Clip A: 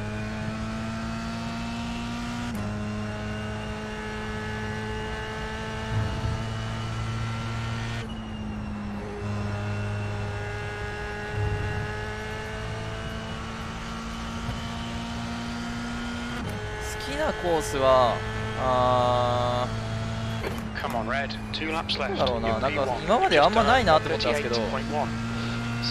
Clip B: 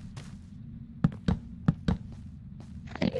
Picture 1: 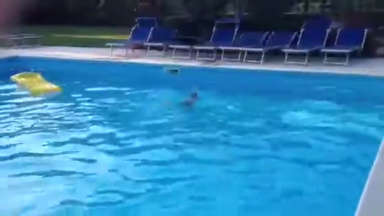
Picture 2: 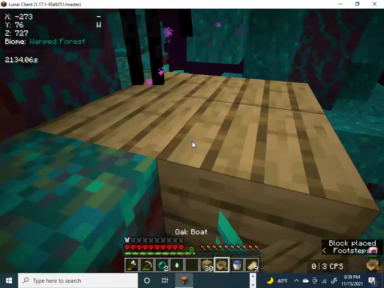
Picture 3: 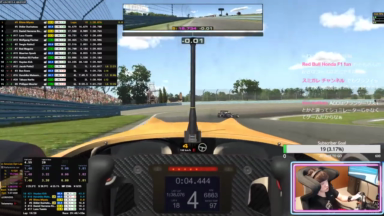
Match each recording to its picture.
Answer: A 3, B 2